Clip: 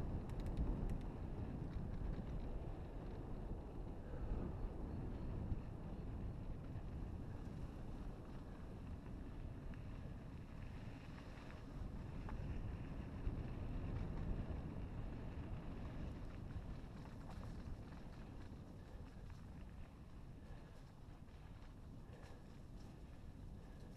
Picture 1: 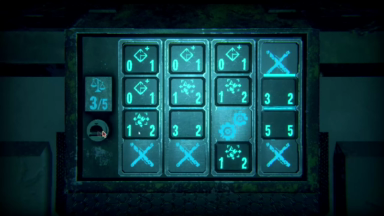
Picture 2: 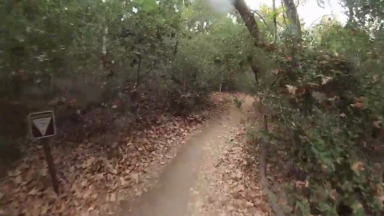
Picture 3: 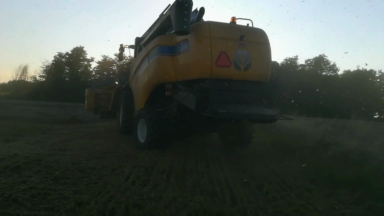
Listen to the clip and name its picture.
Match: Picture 2